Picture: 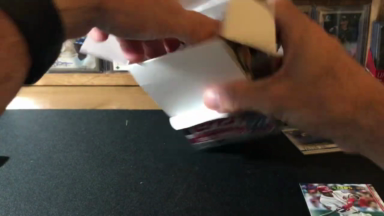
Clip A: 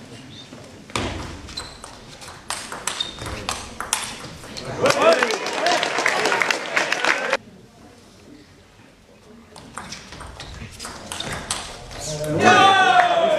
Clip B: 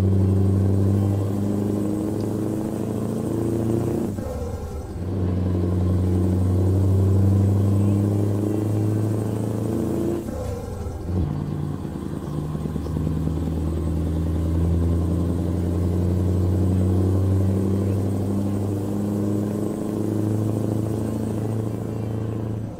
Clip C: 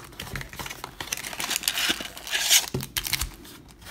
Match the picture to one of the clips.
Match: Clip C